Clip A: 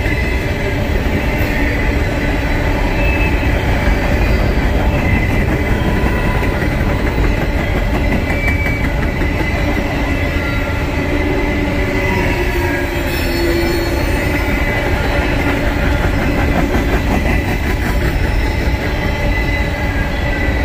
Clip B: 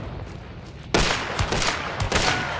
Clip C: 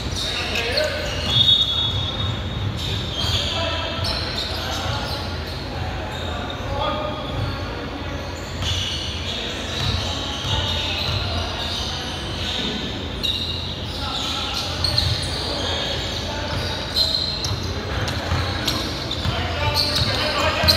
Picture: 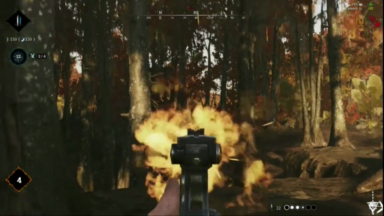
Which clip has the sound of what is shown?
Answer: B